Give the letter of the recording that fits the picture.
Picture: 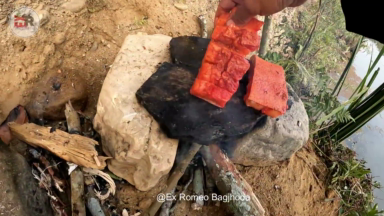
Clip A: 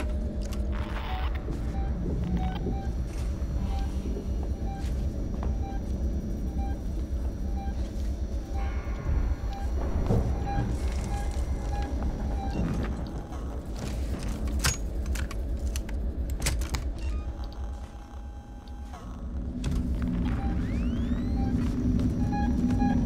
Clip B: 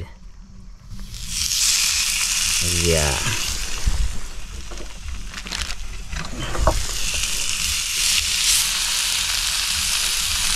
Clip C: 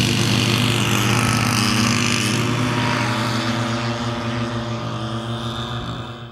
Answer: B